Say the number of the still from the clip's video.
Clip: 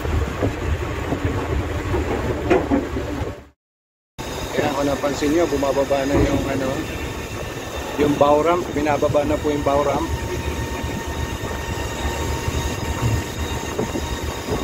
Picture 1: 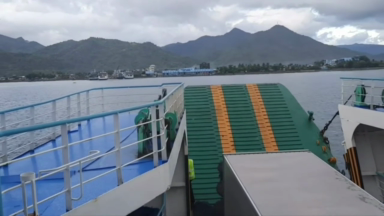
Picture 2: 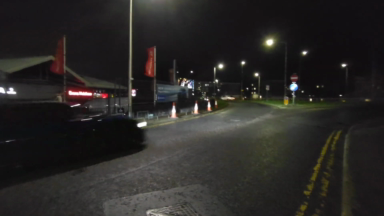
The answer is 1